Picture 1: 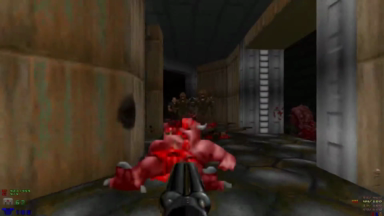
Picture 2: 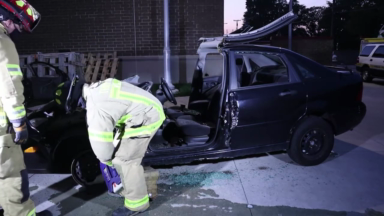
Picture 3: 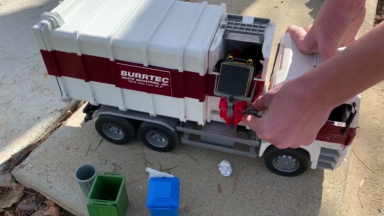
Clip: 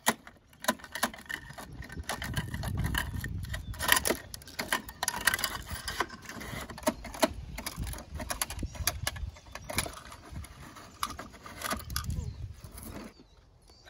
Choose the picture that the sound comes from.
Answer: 3